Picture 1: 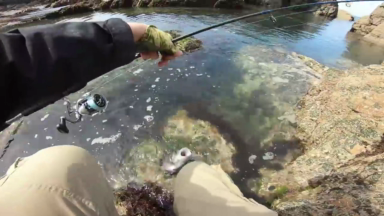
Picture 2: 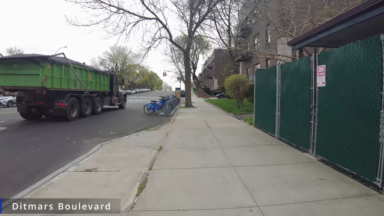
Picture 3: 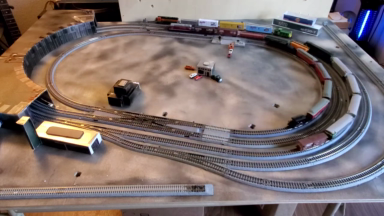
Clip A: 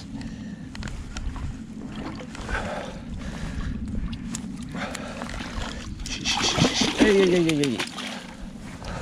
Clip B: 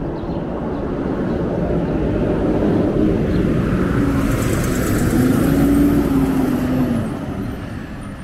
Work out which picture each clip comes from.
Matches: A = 1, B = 2